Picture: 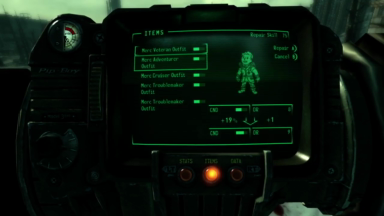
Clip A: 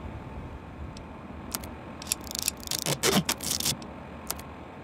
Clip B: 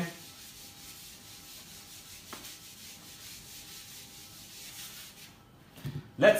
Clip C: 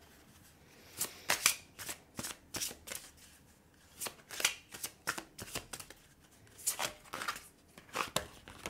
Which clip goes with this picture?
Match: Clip A